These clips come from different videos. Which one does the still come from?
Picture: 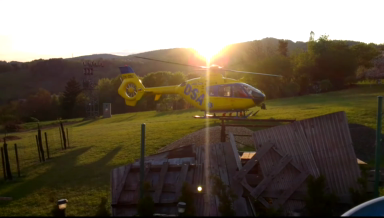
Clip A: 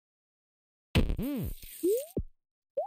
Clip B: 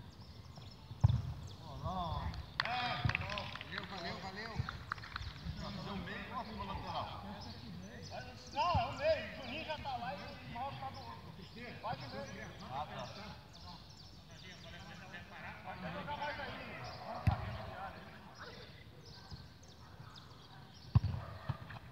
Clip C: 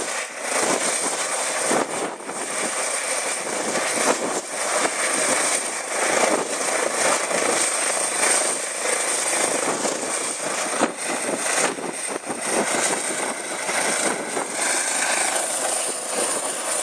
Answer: C